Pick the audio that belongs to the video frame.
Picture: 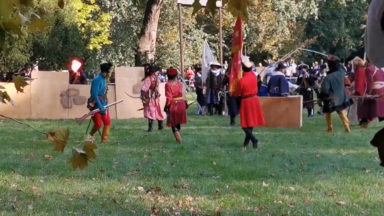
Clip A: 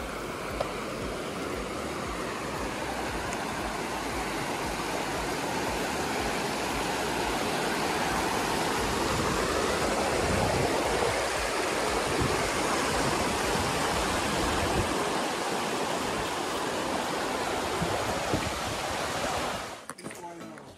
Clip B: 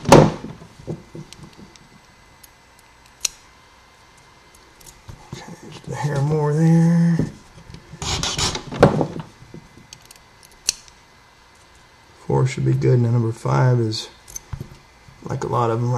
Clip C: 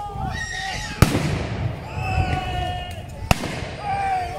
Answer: C